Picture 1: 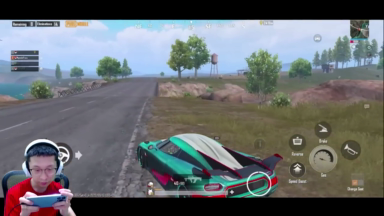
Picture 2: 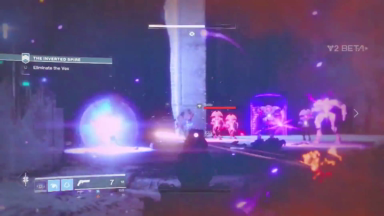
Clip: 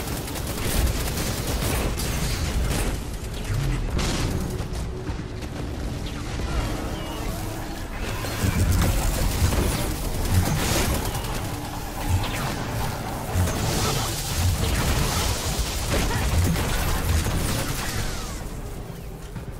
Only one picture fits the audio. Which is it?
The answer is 2